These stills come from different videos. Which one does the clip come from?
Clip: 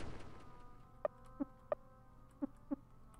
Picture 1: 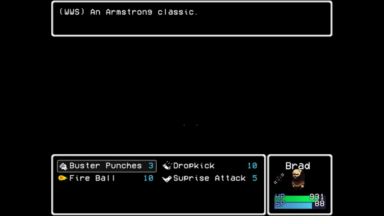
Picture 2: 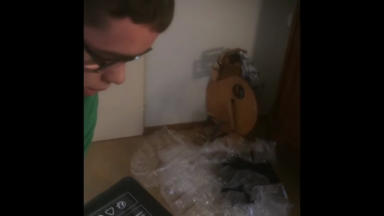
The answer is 1